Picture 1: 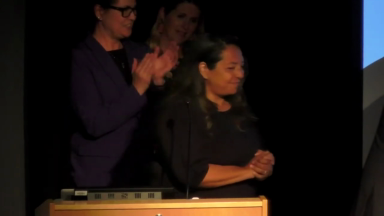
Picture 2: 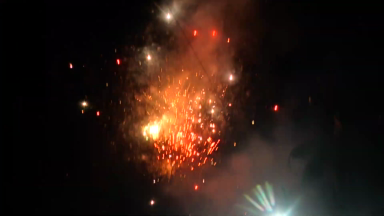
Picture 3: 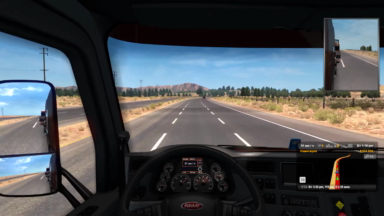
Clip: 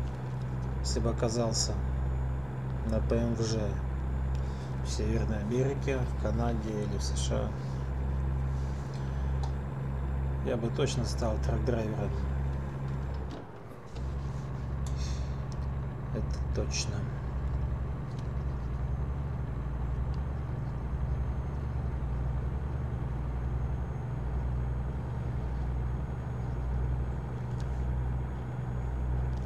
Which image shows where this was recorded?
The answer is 3